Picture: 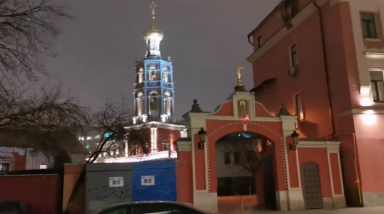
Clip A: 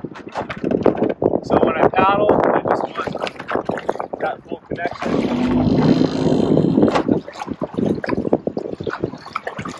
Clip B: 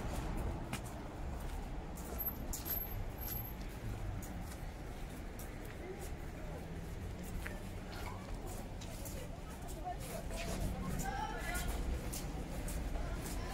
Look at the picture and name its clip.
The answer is B